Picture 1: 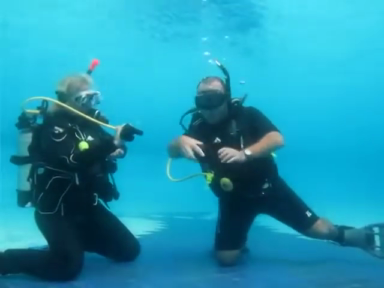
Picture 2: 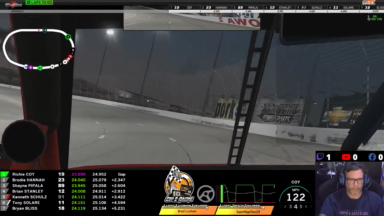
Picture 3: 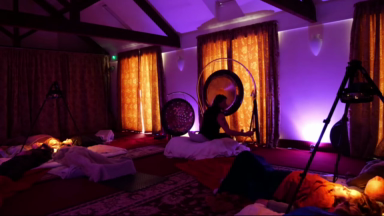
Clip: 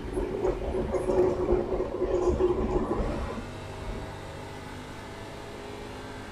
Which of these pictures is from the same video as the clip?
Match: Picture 2